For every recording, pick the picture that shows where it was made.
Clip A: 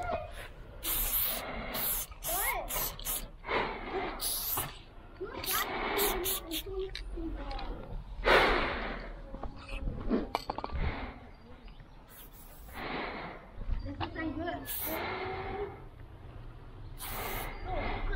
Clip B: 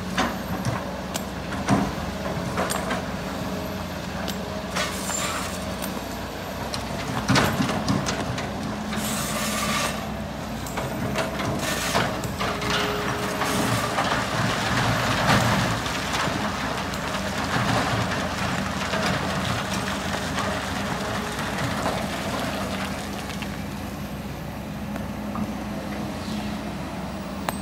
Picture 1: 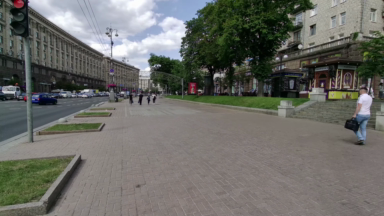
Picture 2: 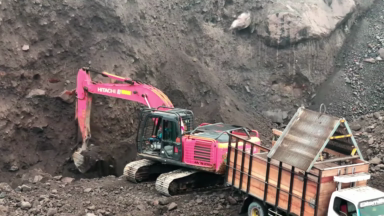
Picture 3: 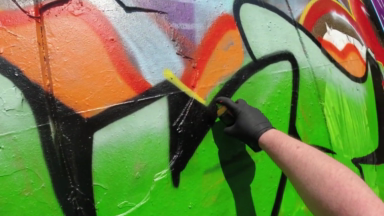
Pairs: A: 3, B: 2